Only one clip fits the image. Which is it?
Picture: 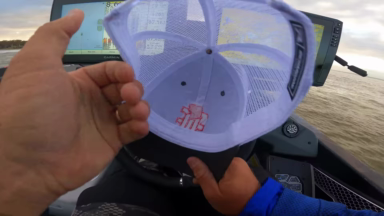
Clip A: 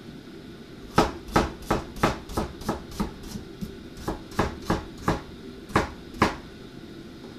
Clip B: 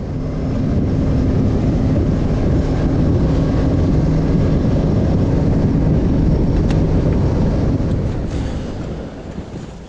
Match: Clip B